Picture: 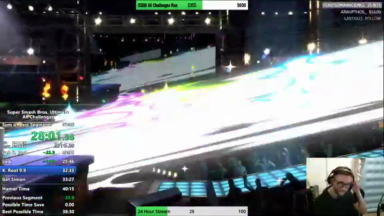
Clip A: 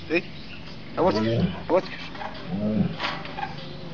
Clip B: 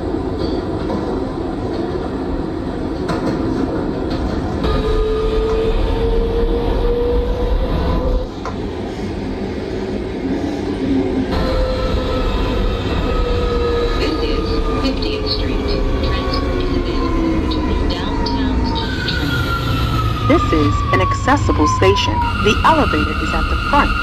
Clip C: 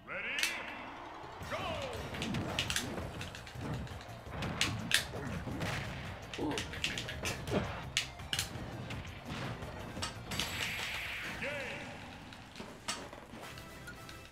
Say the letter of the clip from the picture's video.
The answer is C